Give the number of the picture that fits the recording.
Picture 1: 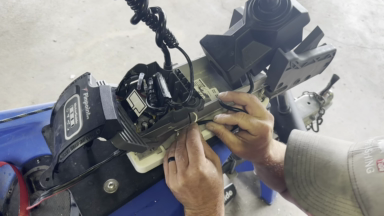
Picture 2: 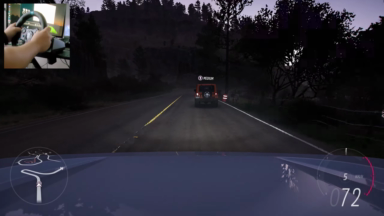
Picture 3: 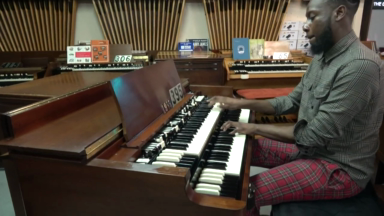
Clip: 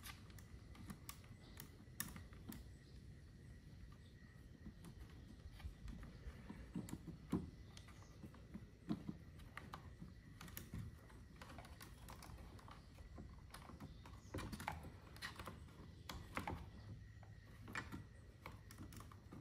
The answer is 1